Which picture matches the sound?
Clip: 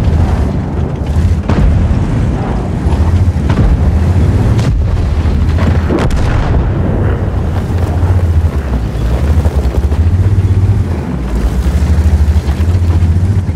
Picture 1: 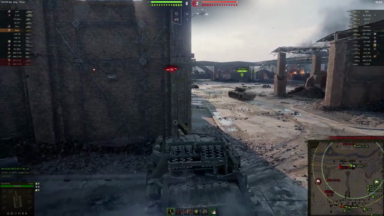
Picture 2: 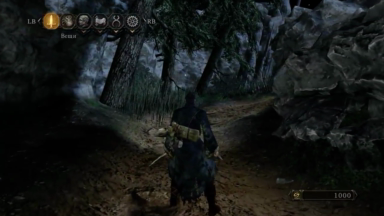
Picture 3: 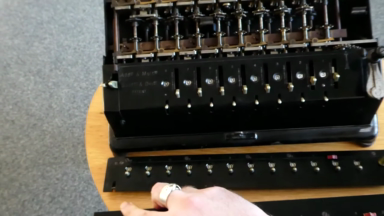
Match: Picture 1